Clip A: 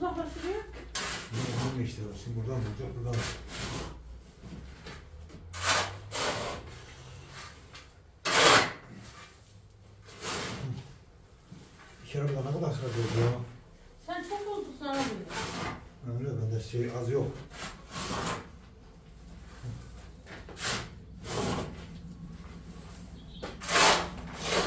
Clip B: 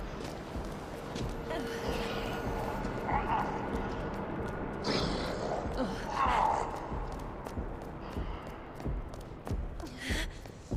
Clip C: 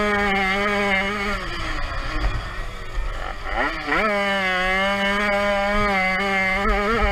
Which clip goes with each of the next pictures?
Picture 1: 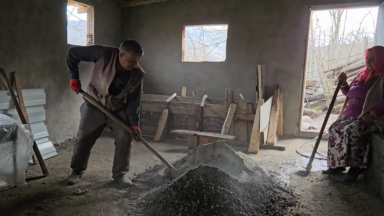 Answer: A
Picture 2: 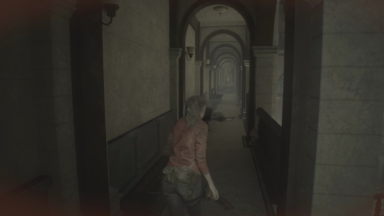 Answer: B